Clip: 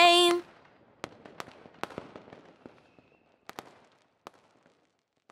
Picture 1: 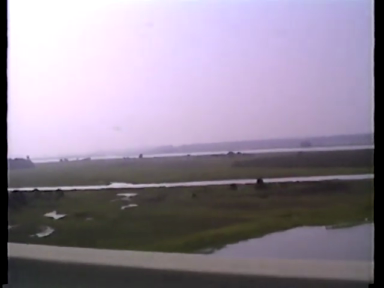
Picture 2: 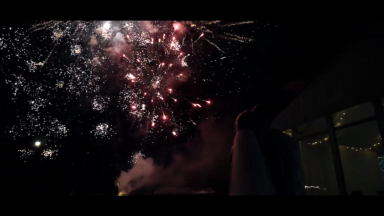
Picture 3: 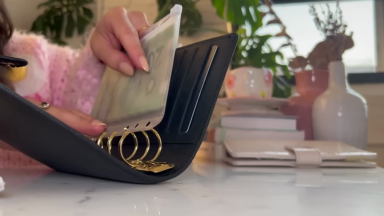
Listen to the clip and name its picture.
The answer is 2